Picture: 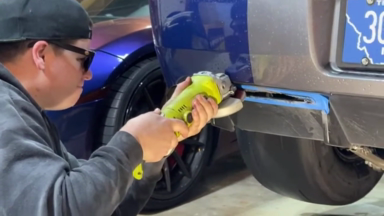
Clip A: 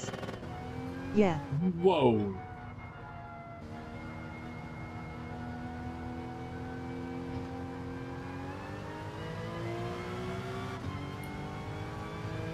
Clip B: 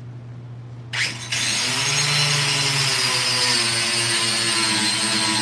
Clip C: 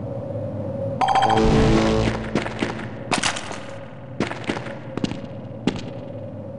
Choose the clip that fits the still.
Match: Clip B